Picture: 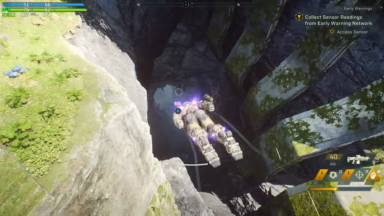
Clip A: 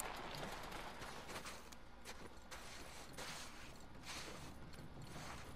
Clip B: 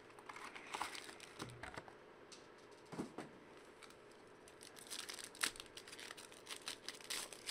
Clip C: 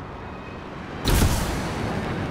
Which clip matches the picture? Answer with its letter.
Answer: C